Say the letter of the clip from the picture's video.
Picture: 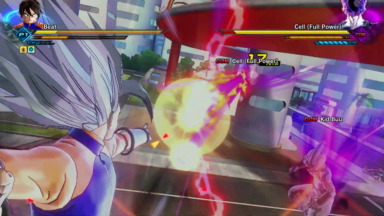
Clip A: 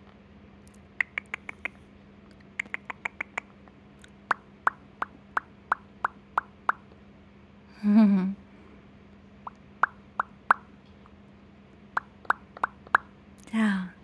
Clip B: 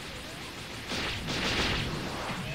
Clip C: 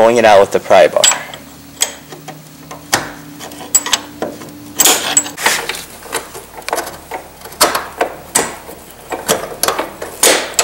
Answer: B